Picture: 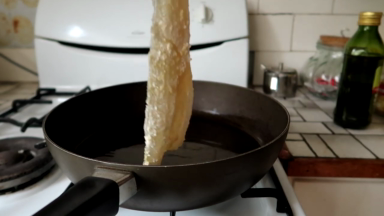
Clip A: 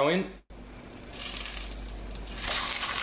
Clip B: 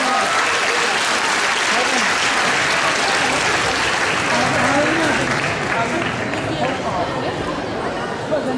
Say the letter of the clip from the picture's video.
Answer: A